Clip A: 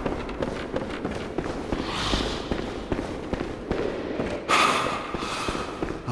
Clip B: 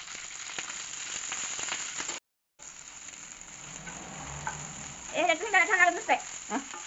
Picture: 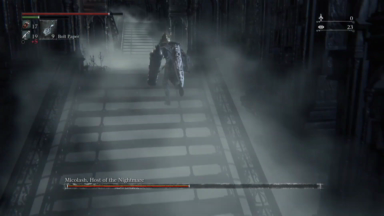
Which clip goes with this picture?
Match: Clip A